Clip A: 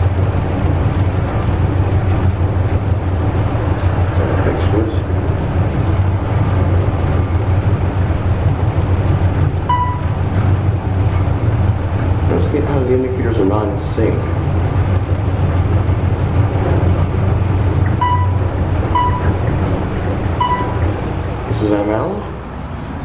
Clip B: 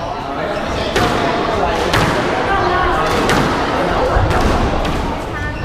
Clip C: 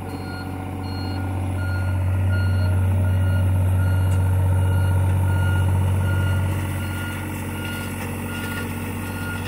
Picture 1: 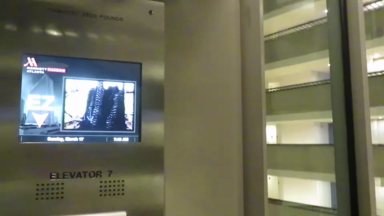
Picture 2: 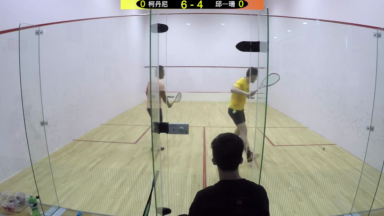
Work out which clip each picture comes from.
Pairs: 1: A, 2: B